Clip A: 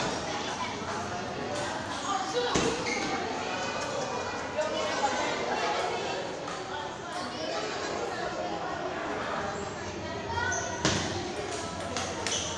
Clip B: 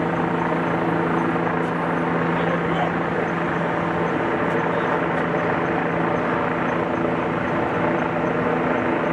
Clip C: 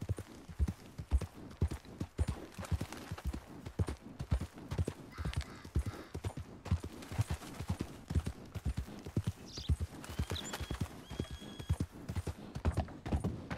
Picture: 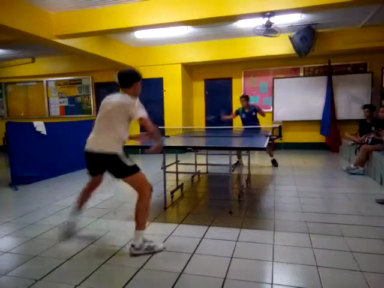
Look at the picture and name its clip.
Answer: A